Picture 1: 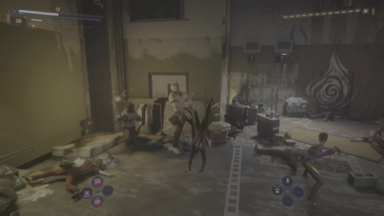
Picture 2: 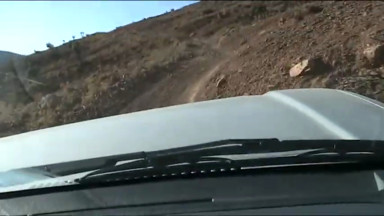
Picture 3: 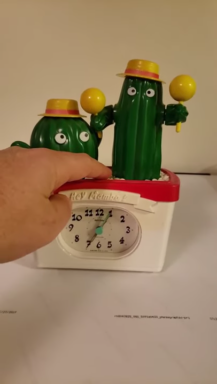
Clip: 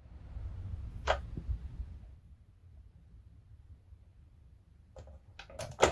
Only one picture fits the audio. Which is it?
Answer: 3